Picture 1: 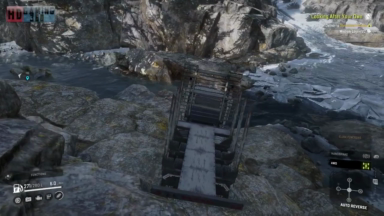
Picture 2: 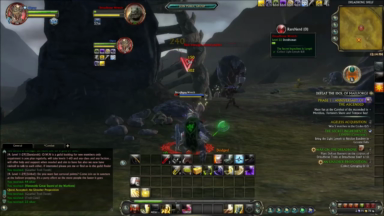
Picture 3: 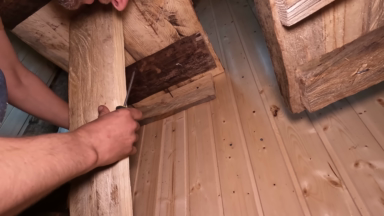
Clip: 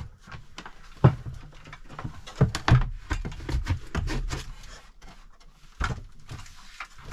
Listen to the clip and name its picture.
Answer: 3